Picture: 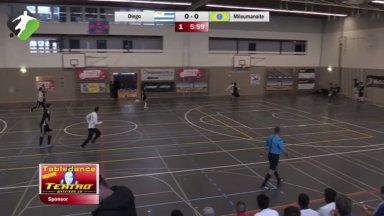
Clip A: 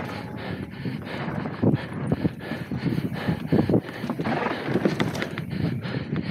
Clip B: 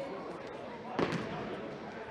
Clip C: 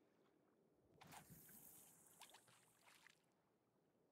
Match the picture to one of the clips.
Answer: B